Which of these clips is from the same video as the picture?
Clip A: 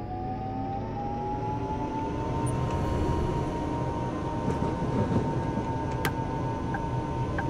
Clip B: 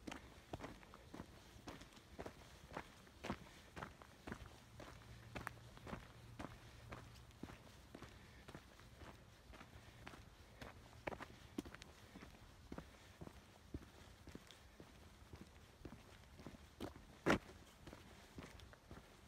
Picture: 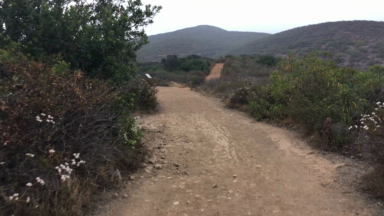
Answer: B